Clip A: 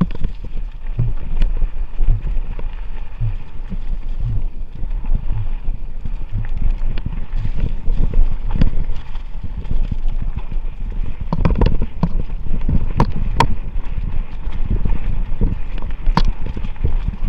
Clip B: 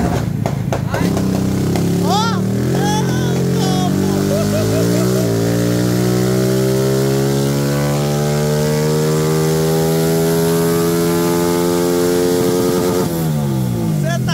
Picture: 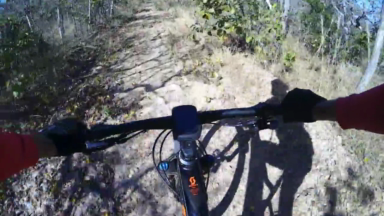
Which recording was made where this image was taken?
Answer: A